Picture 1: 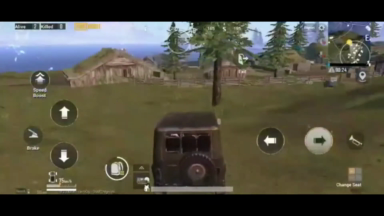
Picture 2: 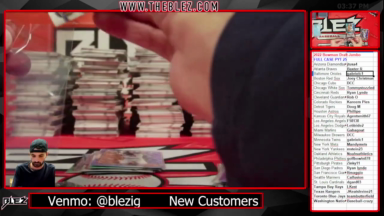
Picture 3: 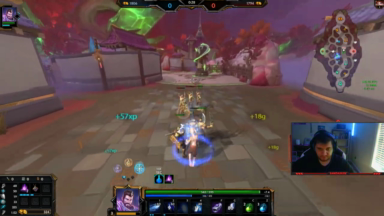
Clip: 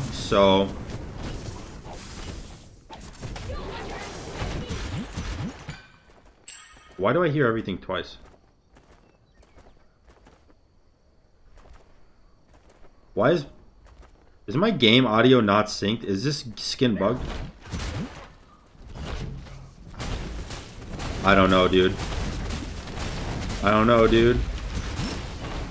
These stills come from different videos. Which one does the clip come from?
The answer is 3